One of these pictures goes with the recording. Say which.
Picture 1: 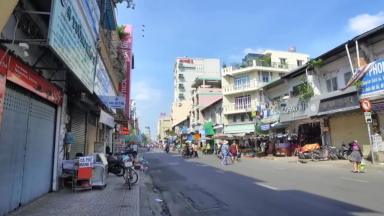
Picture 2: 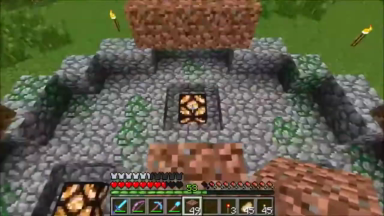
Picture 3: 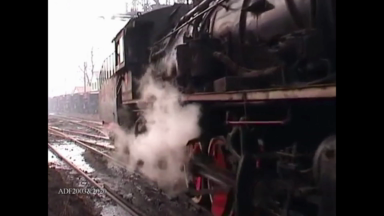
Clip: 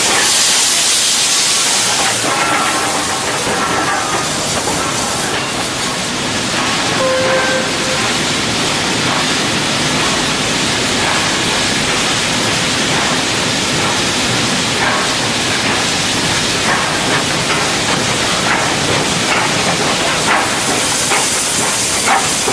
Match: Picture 3